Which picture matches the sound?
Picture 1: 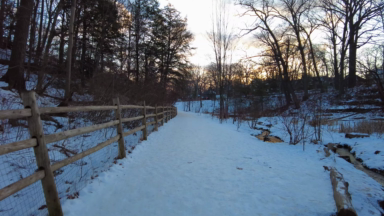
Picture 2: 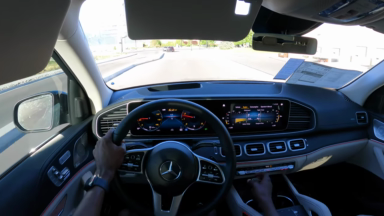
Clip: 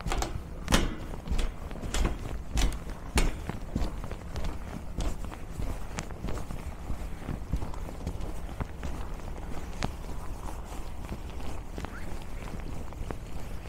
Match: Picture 1